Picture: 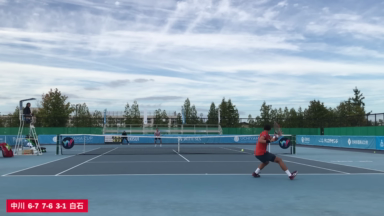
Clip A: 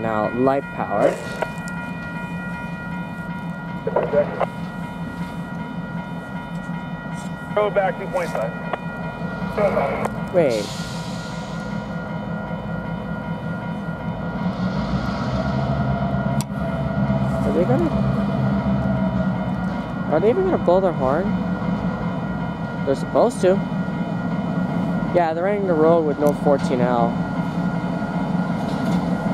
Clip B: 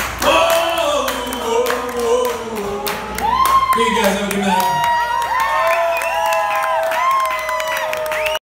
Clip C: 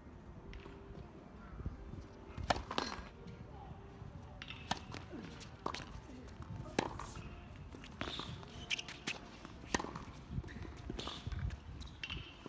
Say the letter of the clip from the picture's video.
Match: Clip C